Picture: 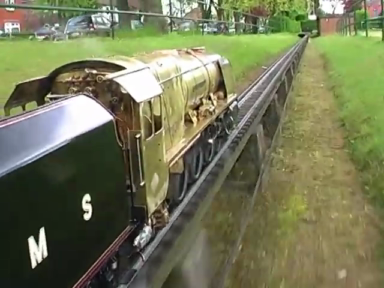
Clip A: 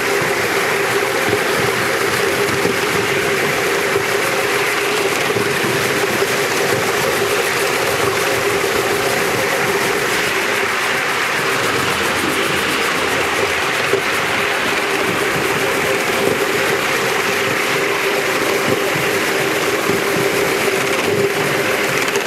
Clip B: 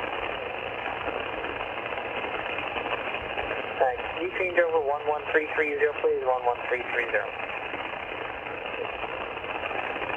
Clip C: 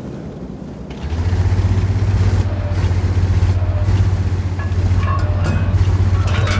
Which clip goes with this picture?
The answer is A